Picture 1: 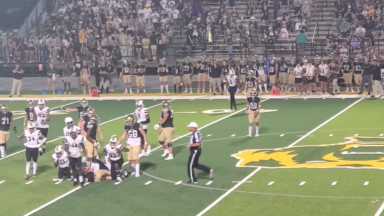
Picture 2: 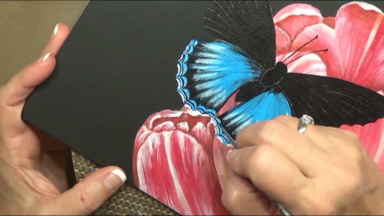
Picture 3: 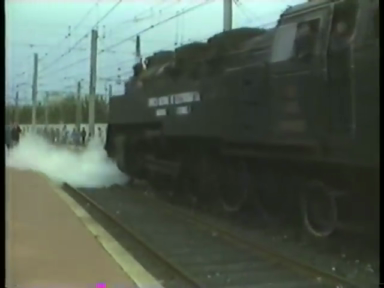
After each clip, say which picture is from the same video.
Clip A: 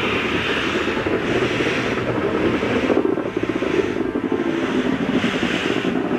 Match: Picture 3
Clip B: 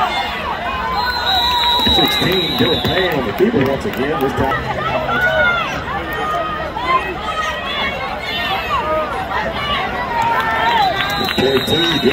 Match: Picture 1